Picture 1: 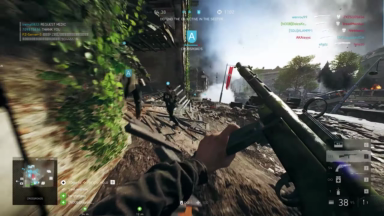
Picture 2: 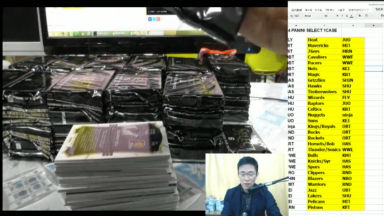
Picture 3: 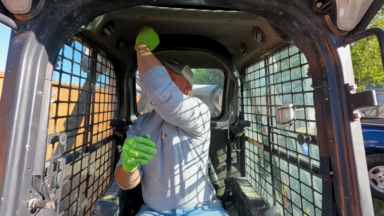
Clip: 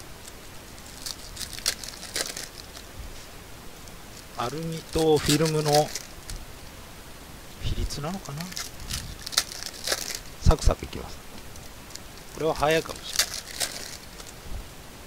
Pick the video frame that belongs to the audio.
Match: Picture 2